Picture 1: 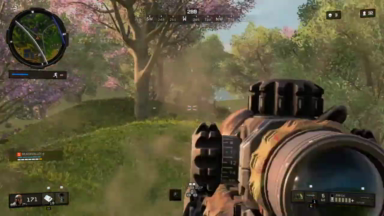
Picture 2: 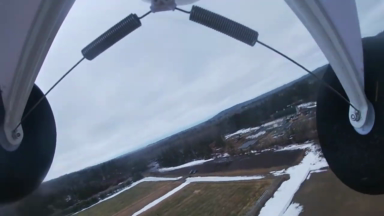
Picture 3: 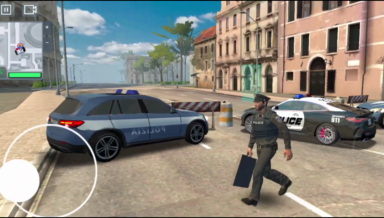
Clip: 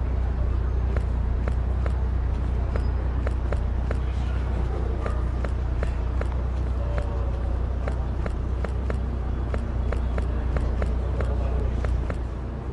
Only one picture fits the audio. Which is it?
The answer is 3